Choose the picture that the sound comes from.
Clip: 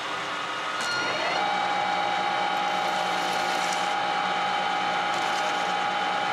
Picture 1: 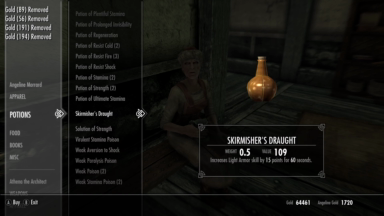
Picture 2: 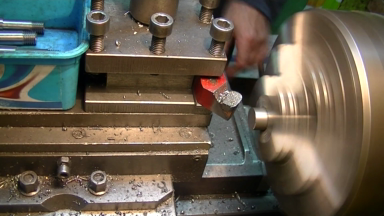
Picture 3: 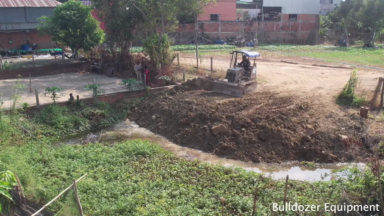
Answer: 2